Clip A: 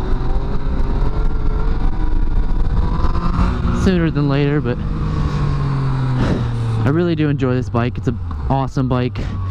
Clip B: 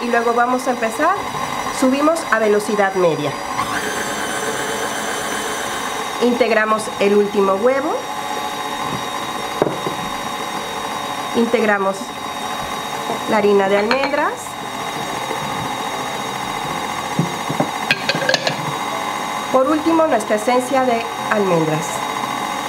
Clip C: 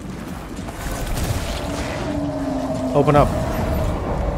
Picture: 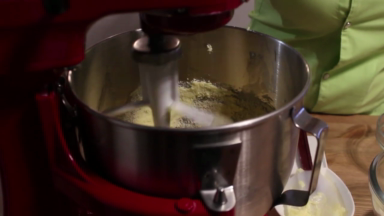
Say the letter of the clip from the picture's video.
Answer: B